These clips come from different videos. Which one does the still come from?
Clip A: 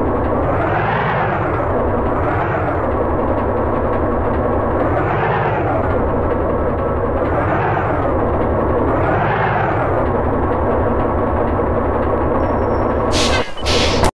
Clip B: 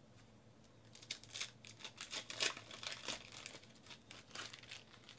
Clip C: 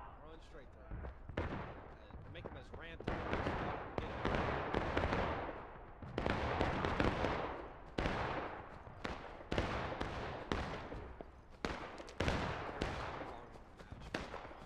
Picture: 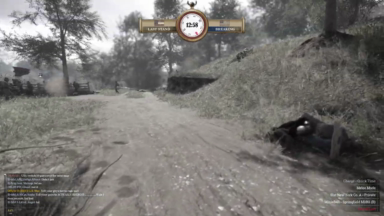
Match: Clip C